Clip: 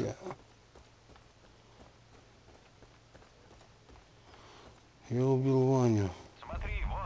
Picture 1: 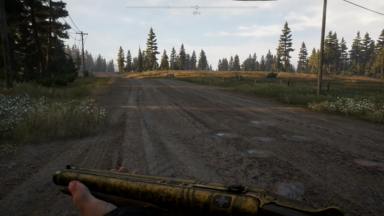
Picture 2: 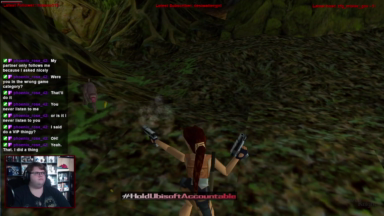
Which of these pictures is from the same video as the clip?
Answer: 1